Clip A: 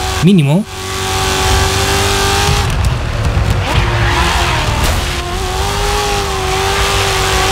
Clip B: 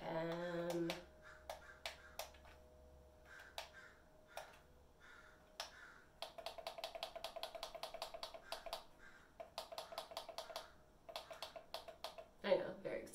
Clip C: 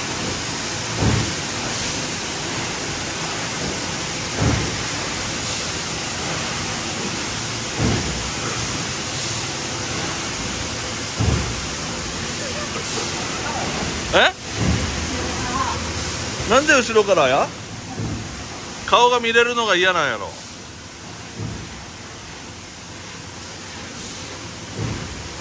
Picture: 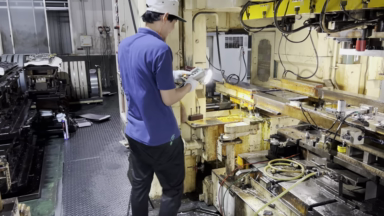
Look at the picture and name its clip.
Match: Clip C